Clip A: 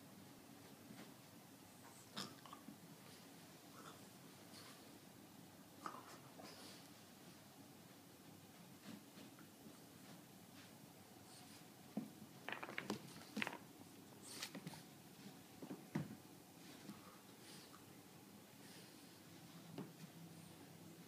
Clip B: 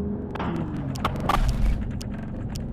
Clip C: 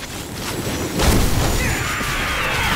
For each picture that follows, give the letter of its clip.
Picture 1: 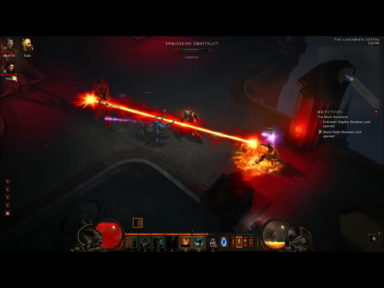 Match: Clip C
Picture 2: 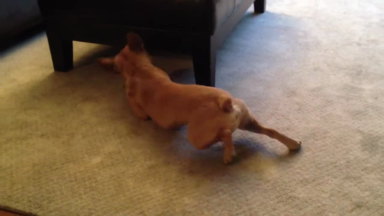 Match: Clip A